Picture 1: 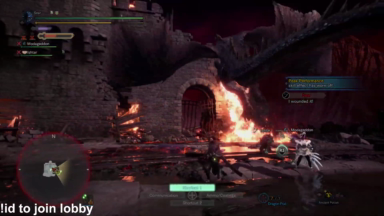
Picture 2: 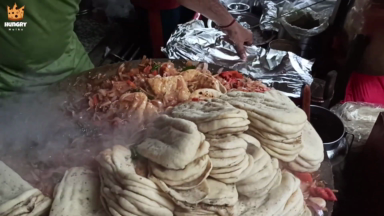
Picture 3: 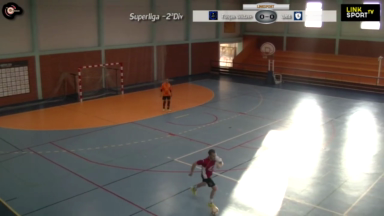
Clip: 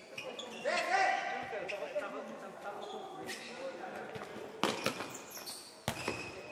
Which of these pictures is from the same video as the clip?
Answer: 3